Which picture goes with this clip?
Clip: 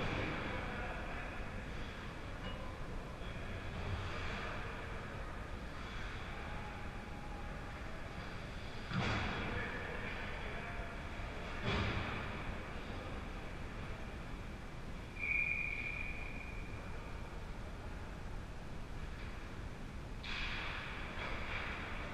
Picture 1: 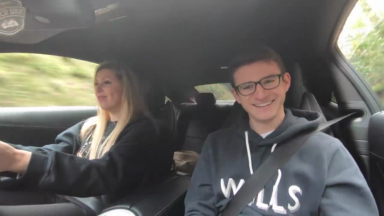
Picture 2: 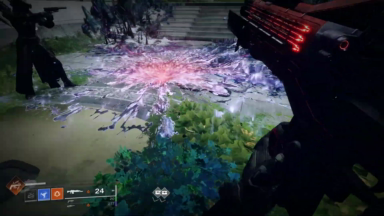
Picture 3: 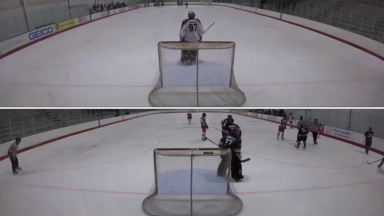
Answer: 3